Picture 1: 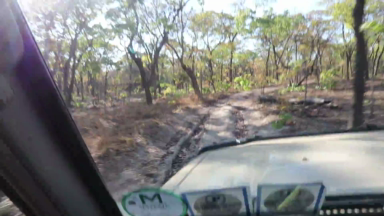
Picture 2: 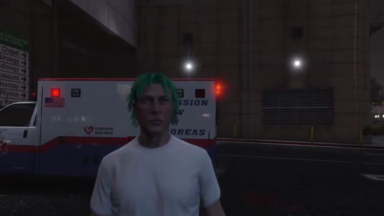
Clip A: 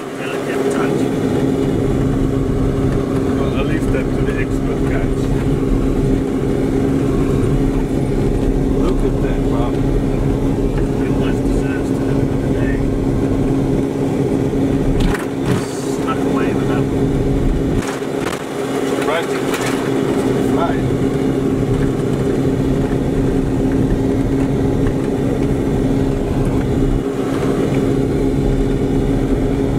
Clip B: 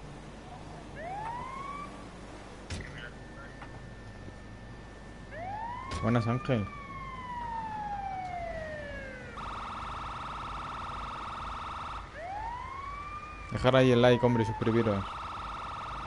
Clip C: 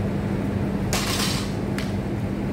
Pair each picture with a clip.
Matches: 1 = A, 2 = B